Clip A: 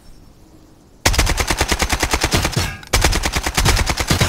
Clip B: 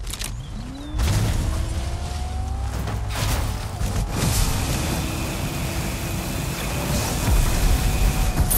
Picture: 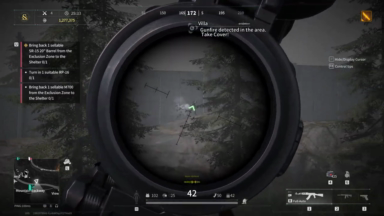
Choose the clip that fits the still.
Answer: A